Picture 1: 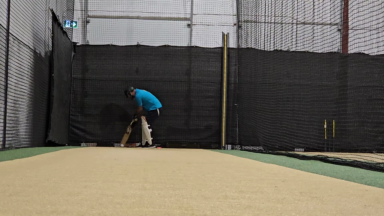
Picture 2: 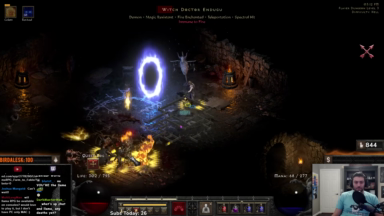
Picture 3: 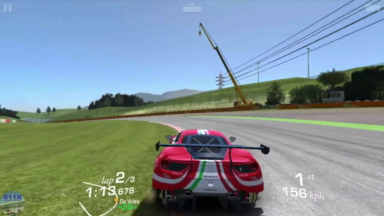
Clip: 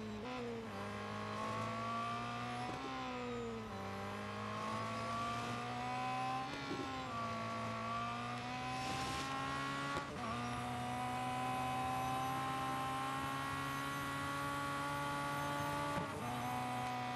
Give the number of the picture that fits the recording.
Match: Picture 3